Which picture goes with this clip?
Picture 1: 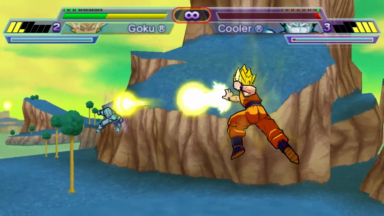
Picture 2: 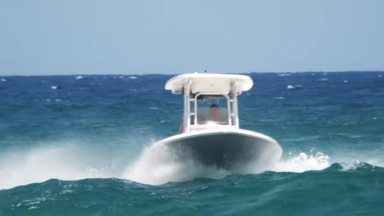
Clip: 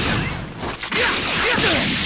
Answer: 1